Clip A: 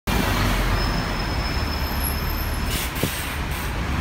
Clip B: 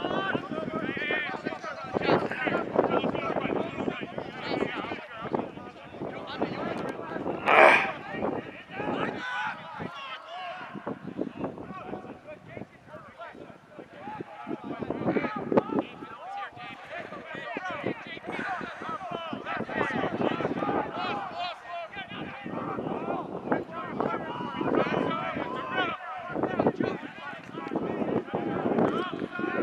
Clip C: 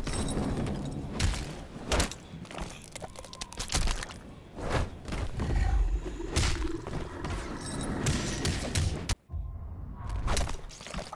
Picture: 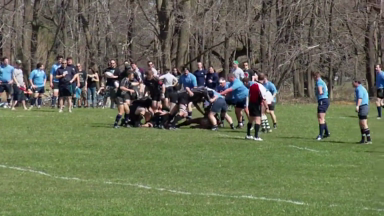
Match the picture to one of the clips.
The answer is B